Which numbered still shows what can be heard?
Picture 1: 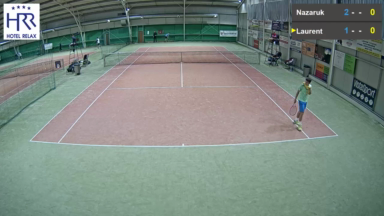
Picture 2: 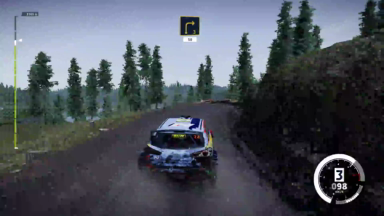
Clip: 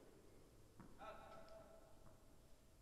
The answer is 1